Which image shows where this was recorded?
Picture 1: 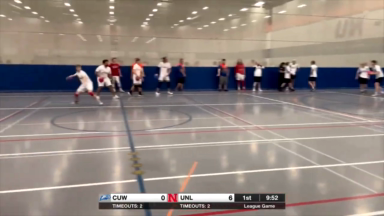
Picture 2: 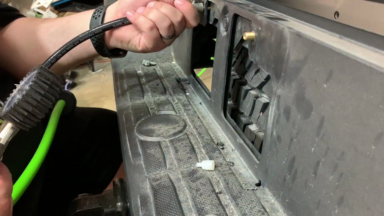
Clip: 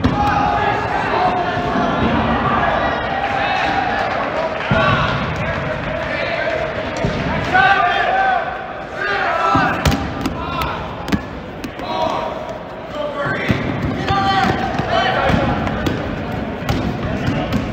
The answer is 1